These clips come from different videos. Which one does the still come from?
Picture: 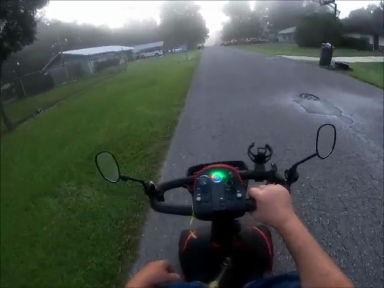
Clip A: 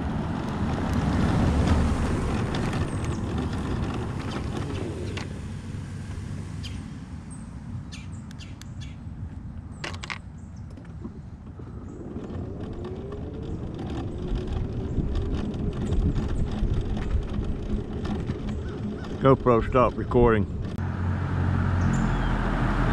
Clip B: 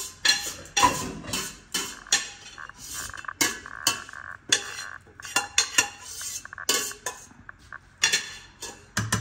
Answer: A